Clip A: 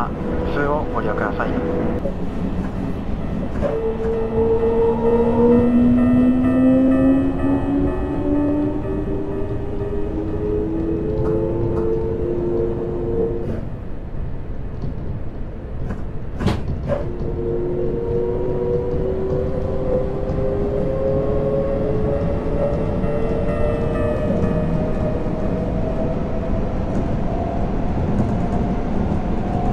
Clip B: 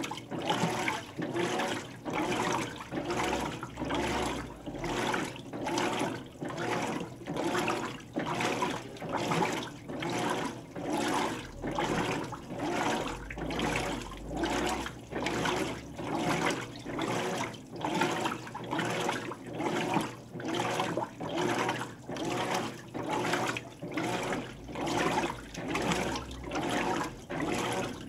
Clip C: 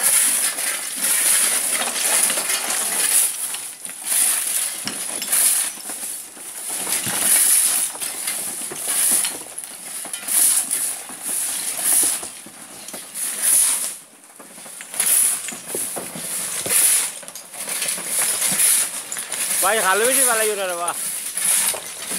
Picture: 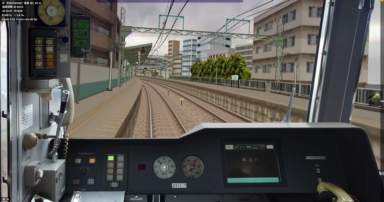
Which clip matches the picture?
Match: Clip A